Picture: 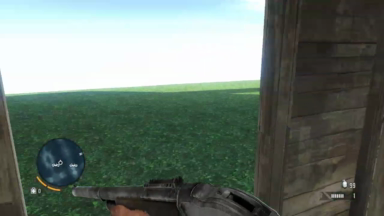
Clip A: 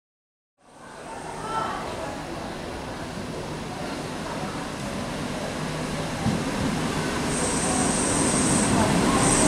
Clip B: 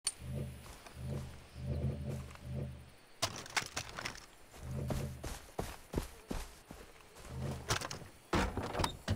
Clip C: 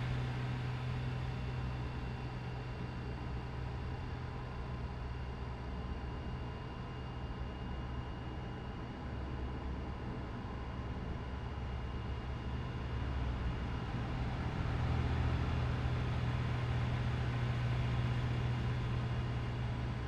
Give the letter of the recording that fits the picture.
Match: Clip B